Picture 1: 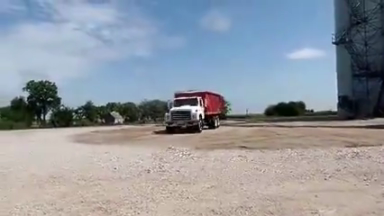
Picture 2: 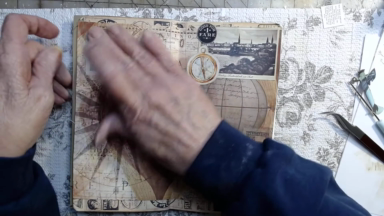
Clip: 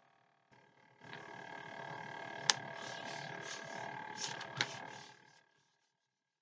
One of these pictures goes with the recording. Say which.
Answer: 2